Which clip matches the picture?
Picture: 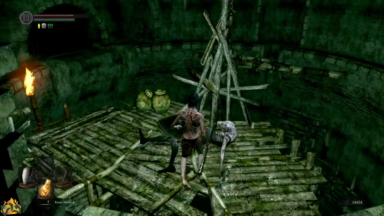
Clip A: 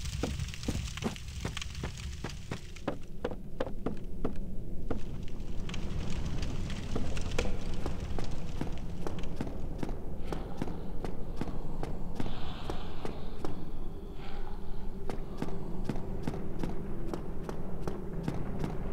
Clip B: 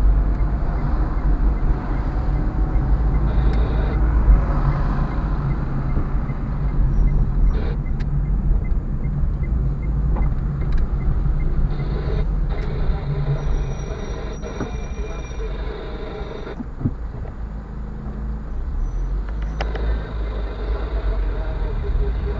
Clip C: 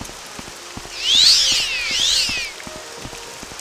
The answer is A